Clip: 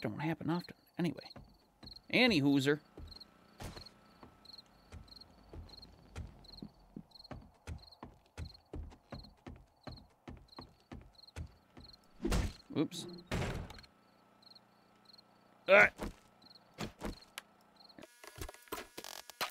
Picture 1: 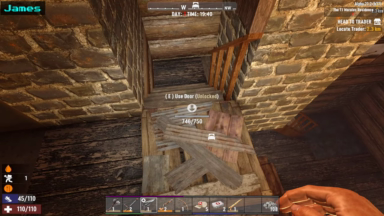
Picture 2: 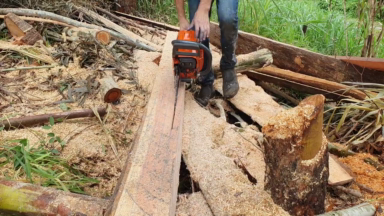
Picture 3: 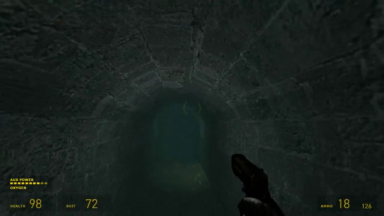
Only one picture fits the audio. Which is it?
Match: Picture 1